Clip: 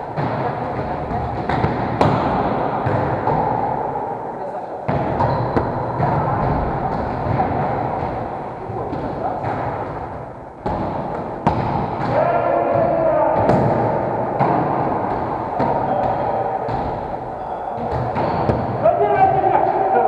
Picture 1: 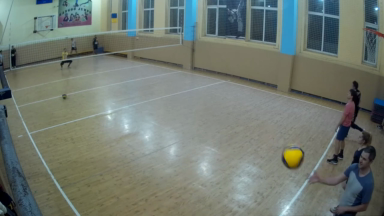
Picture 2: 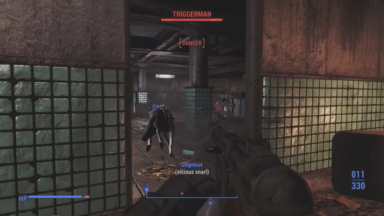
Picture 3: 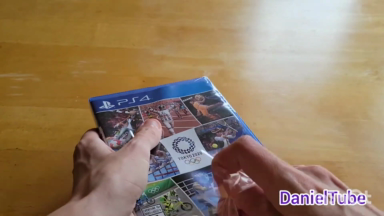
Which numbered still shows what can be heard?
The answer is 1